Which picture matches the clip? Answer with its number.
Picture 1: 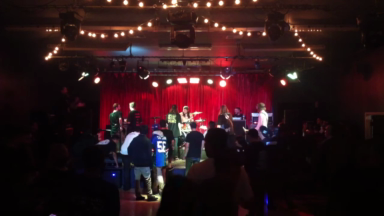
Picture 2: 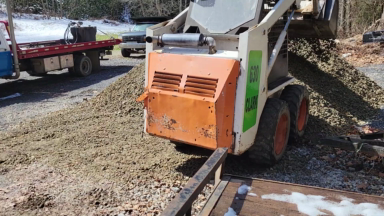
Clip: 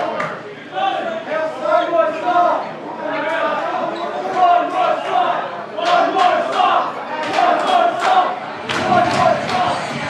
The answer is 1